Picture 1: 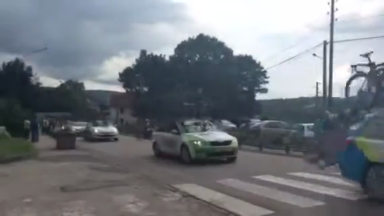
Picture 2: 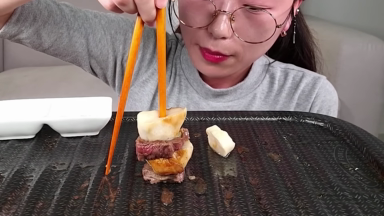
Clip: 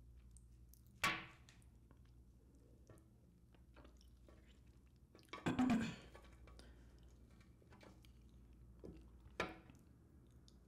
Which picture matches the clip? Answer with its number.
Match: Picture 2